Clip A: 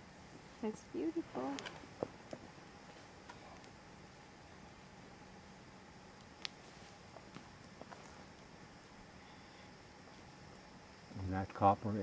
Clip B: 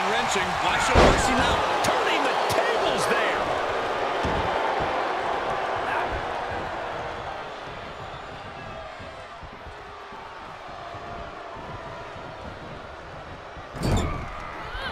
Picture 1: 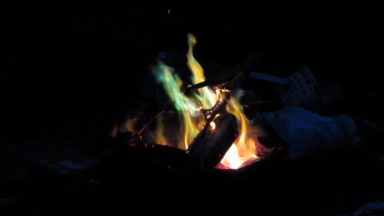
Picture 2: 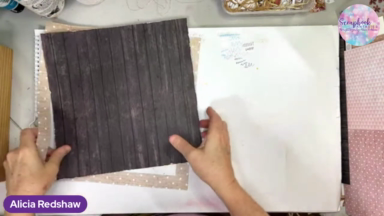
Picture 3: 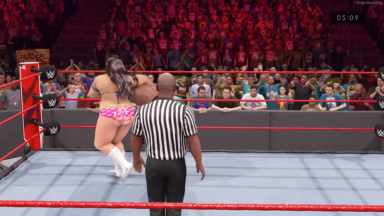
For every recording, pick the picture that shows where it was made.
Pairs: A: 1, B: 3